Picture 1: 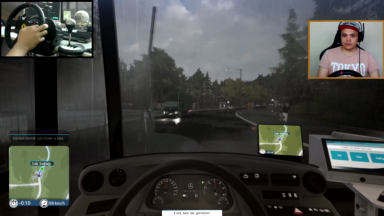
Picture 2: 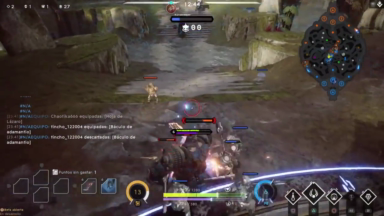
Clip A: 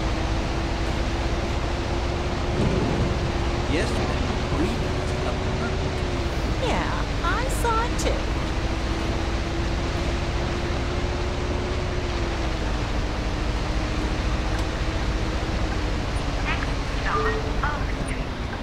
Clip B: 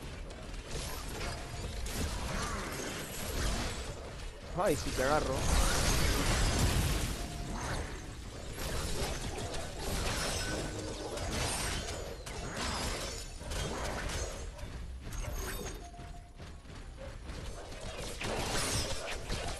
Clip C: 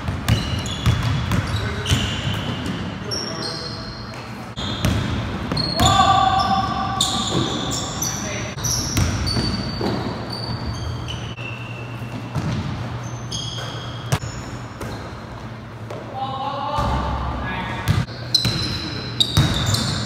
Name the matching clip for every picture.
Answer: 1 A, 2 B